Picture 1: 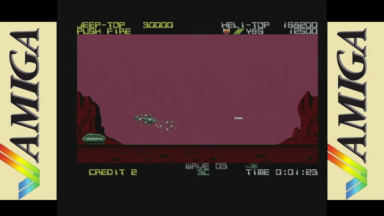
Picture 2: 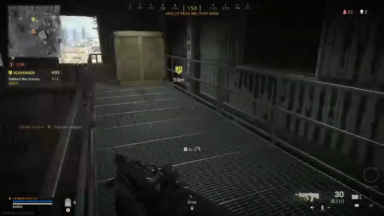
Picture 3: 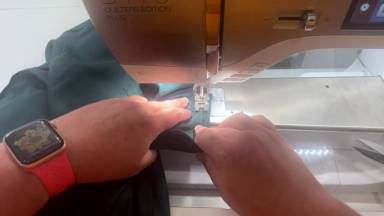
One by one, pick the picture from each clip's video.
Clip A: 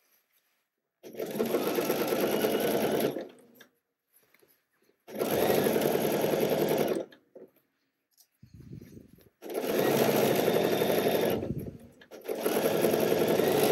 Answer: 3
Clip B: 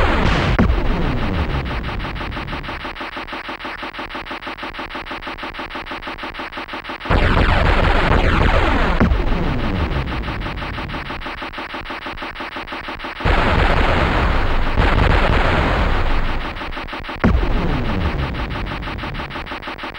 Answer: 1